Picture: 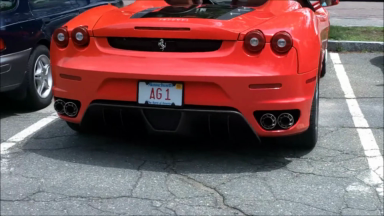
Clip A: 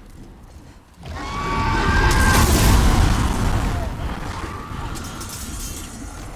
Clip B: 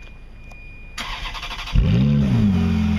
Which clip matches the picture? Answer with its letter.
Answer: B